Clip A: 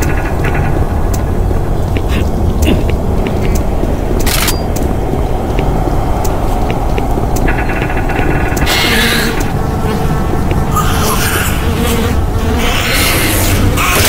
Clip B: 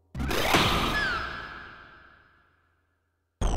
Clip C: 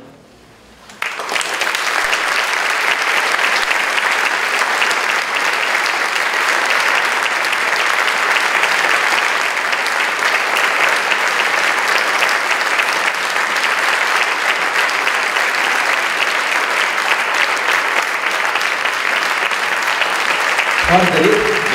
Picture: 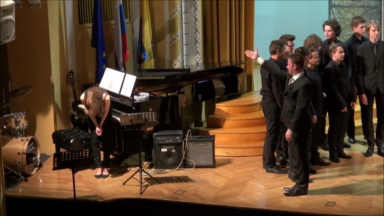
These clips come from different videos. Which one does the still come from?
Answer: C